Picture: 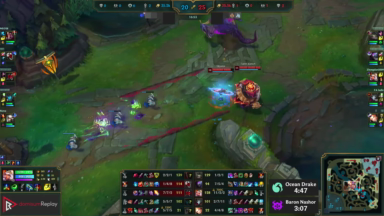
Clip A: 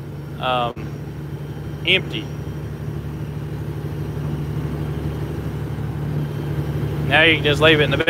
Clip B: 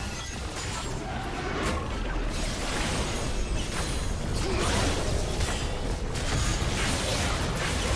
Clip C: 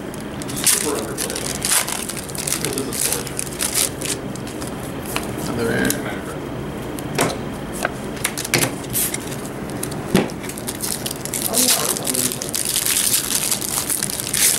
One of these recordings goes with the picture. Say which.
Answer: B